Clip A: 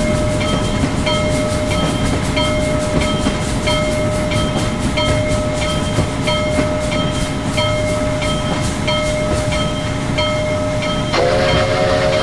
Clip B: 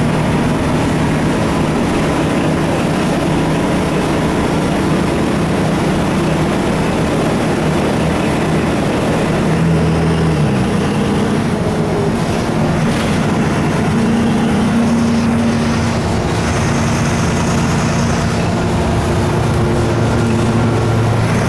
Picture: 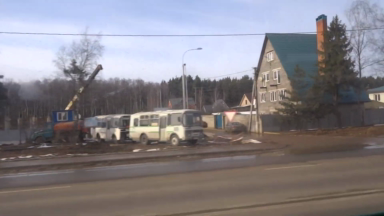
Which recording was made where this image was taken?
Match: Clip B